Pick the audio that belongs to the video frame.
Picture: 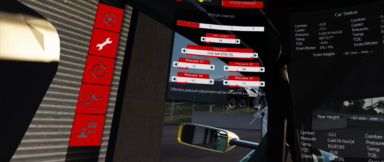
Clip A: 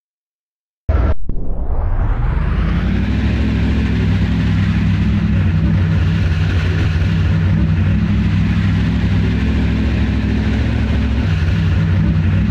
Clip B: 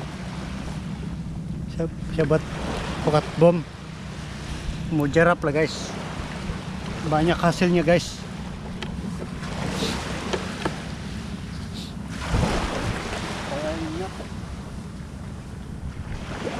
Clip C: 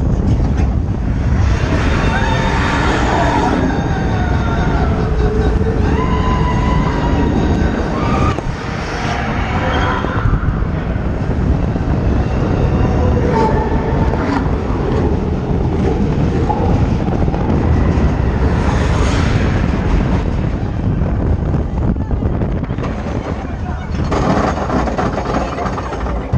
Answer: A